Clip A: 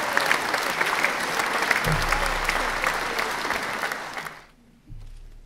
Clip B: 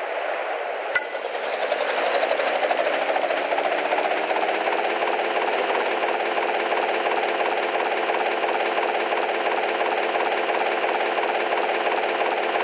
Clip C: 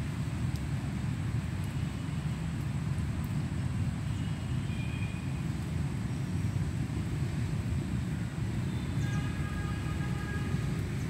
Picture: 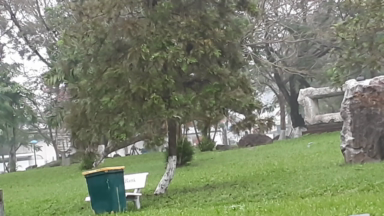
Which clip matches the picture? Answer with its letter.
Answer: C